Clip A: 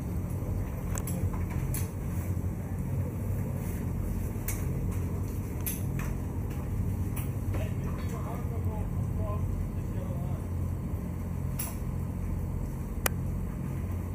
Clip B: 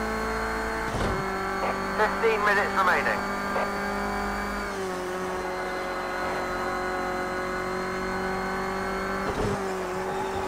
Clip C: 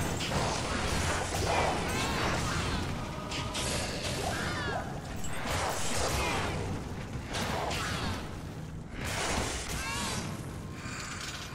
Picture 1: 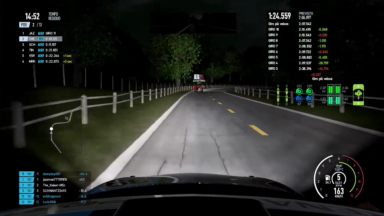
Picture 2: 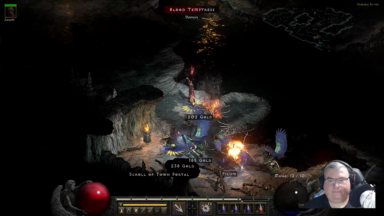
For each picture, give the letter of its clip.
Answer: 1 B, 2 C